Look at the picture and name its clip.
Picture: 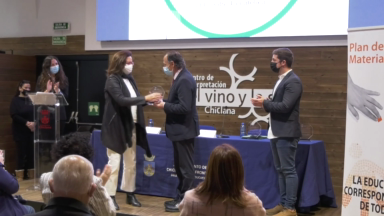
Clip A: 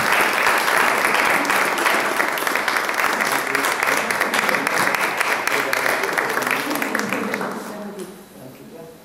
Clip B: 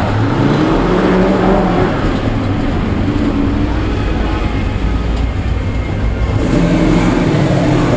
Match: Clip A